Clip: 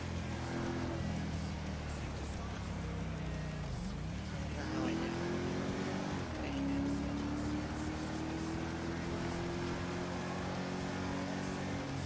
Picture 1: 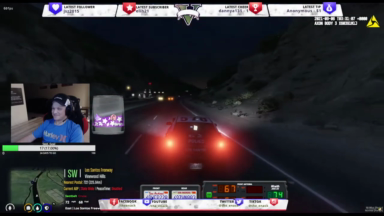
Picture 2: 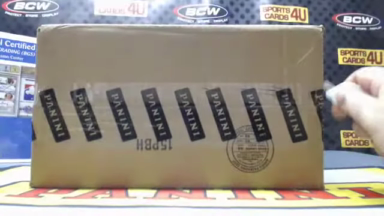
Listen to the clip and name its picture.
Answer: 1